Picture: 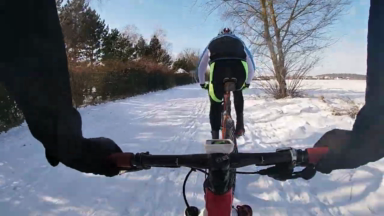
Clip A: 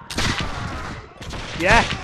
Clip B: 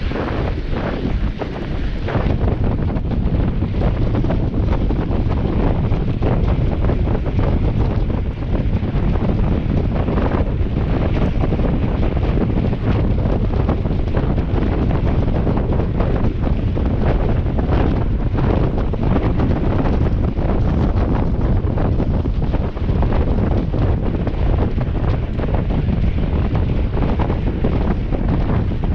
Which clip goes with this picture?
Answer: B